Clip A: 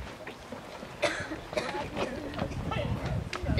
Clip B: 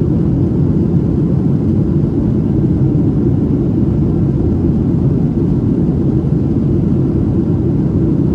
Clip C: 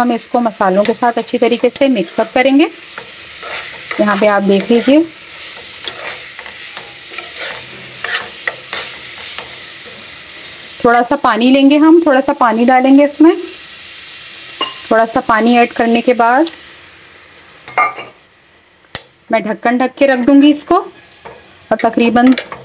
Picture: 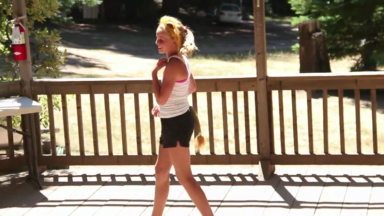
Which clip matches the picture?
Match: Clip A